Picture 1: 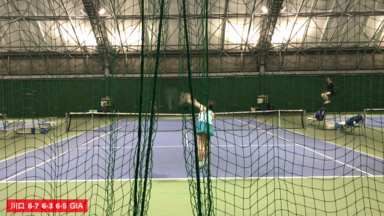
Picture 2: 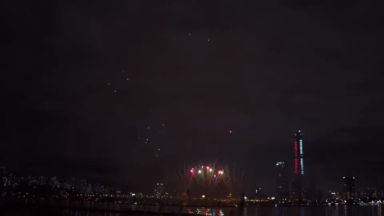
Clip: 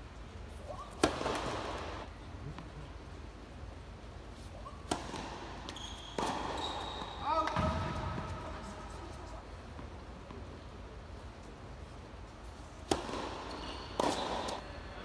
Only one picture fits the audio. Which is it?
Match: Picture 1